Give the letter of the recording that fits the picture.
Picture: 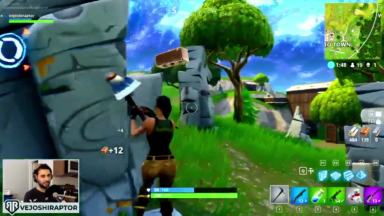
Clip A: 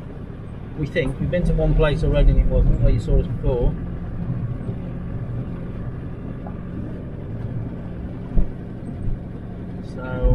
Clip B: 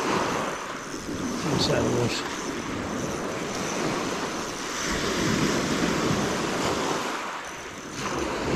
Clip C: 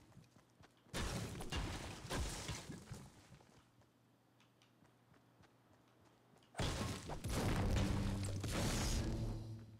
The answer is C